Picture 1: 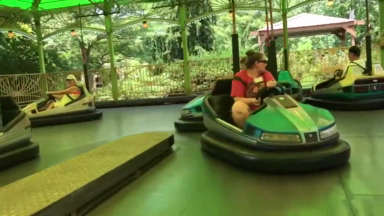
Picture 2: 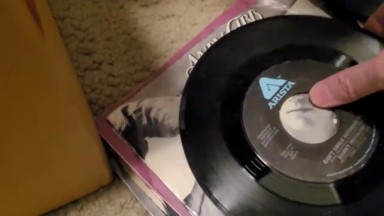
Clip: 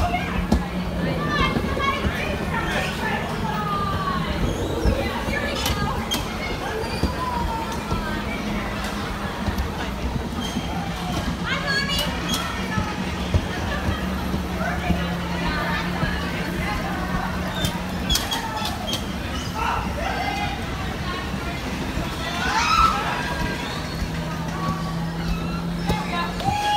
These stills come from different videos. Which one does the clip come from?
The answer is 1